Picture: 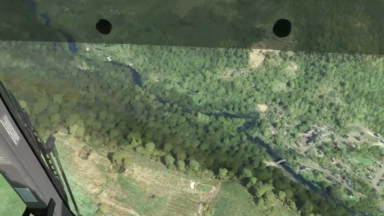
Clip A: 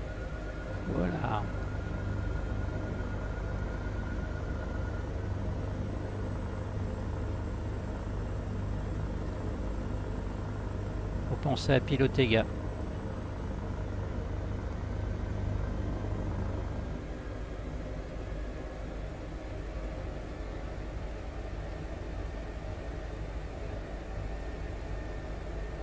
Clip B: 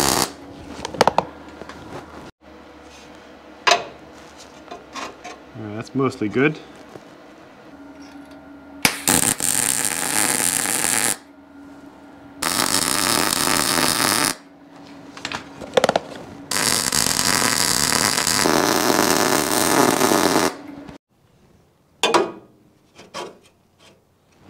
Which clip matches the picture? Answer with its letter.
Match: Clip A